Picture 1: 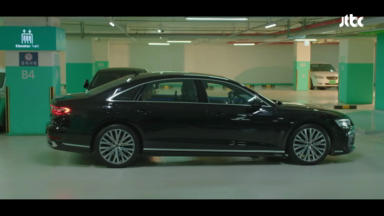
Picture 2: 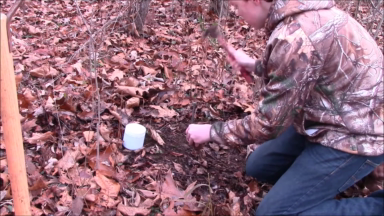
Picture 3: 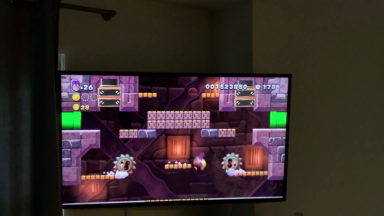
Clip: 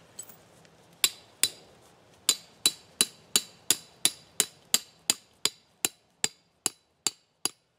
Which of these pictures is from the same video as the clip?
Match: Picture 2